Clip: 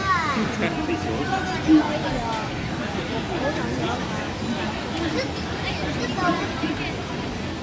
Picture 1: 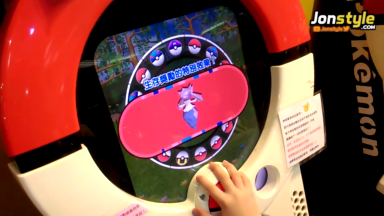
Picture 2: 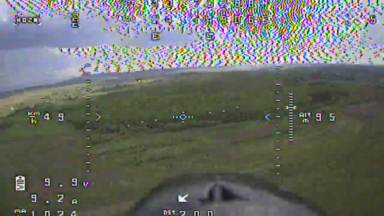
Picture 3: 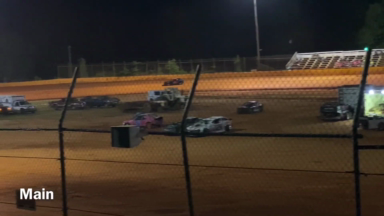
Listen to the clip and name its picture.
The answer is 1